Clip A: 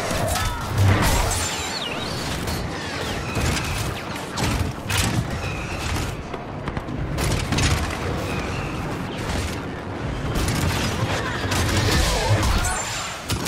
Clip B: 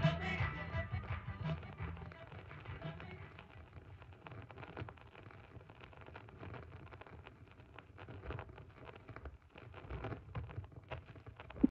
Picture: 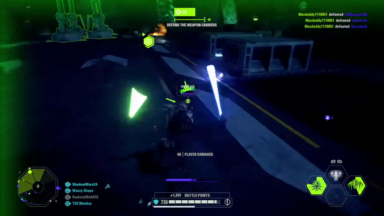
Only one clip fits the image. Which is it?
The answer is A